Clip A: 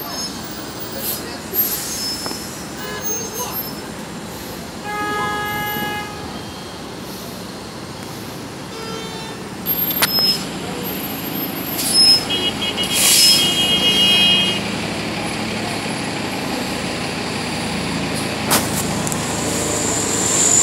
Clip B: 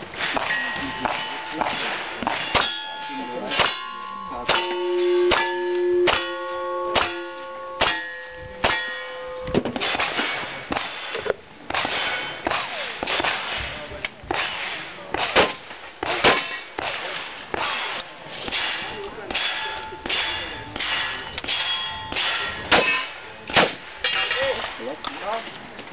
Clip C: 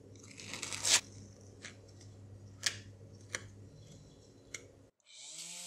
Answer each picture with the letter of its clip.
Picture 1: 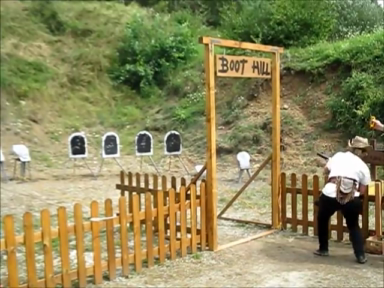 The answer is B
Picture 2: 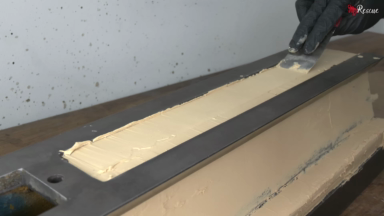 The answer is C